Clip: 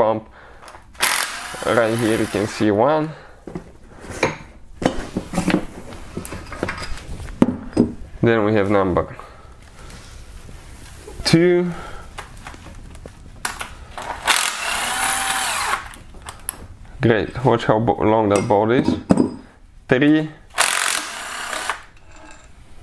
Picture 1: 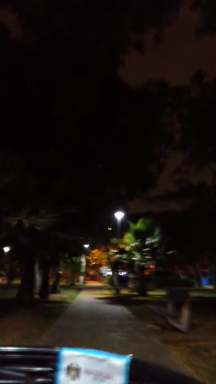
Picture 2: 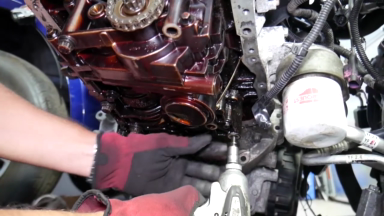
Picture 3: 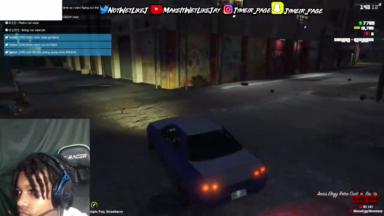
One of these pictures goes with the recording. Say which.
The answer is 2